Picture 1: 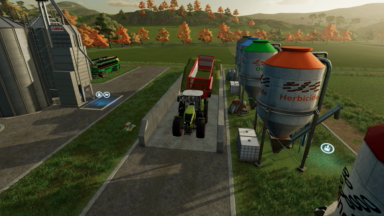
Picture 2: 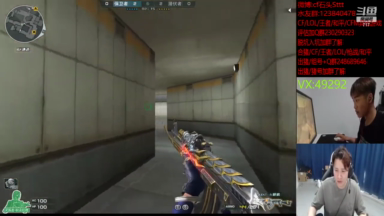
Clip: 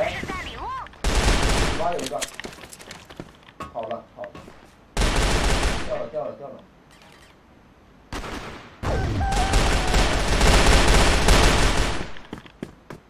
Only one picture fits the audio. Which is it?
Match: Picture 2